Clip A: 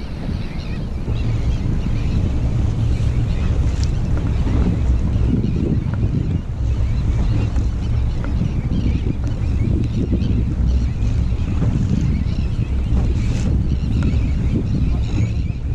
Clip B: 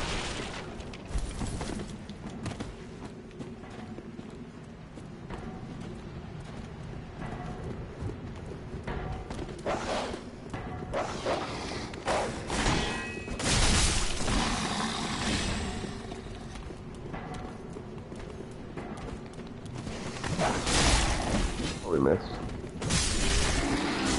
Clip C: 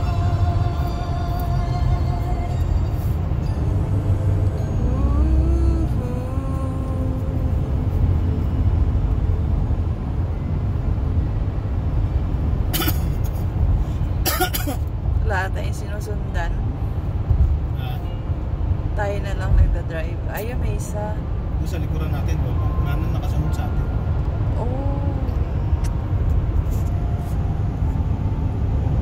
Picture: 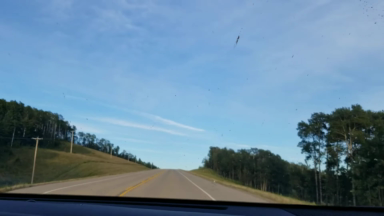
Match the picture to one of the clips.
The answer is C